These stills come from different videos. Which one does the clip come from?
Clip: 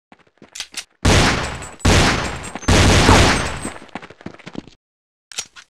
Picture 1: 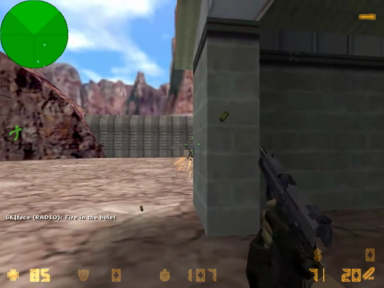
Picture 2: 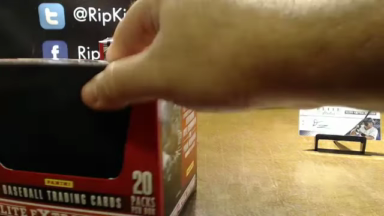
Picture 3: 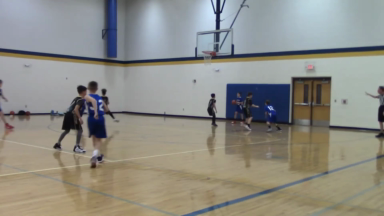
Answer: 1